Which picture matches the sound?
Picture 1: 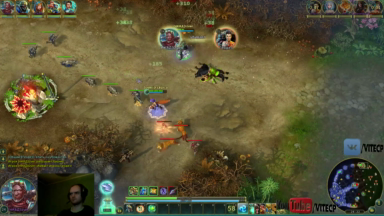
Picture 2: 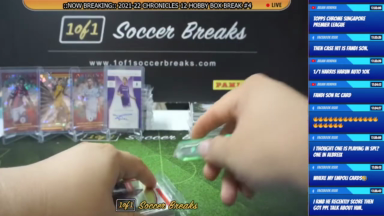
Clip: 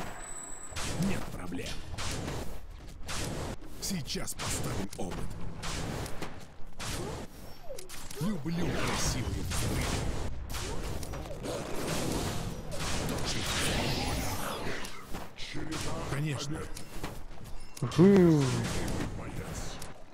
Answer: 1